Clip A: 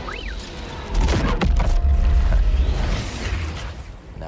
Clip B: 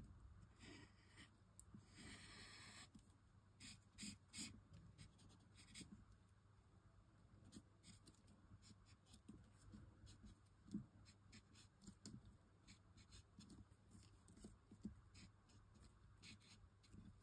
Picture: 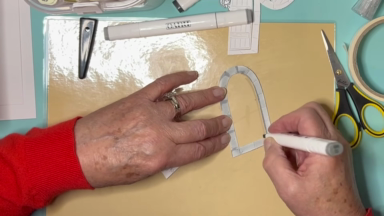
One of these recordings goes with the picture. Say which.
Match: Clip B